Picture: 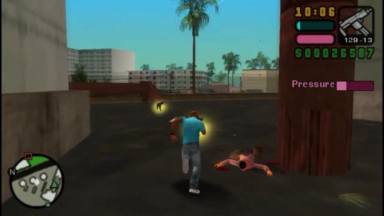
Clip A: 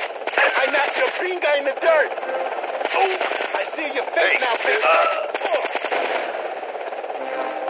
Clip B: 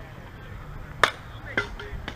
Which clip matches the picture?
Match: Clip A